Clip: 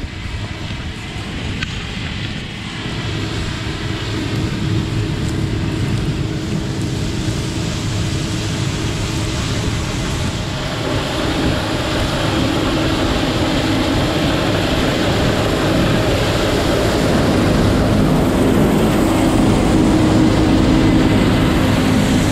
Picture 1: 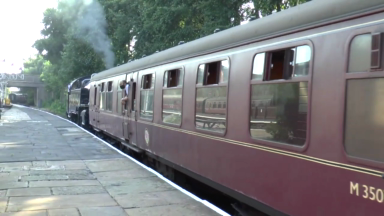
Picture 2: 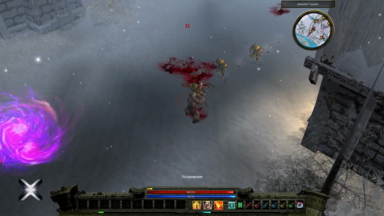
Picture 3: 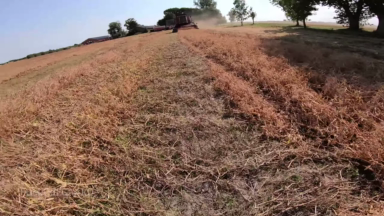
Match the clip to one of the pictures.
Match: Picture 3